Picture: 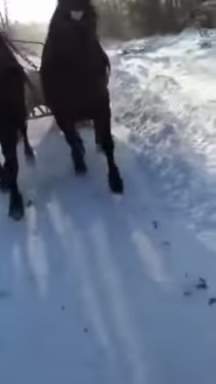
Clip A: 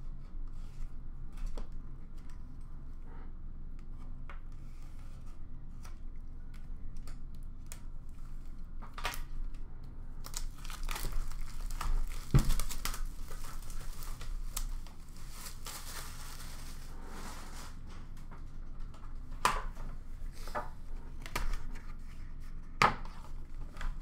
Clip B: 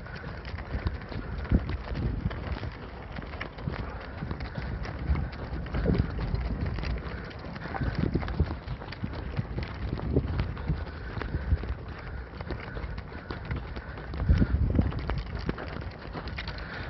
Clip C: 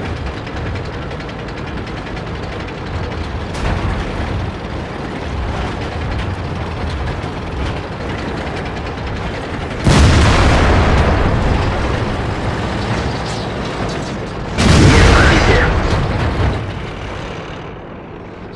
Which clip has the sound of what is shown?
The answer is B